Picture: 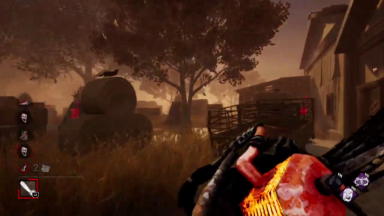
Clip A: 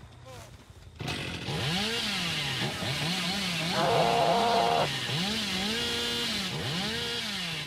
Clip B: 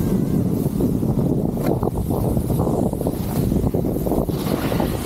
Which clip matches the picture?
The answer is A